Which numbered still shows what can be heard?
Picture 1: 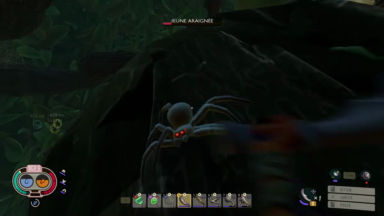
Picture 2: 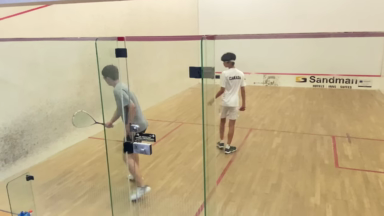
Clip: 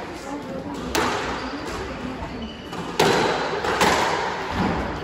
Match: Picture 2